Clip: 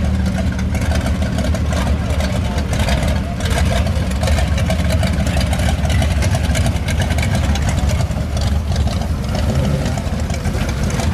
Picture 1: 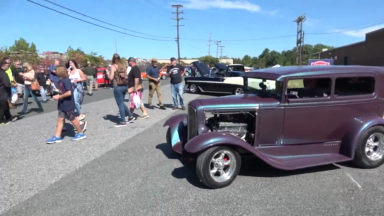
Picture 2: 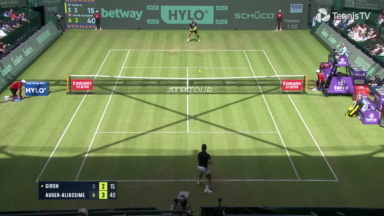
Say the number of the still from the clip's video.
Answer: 1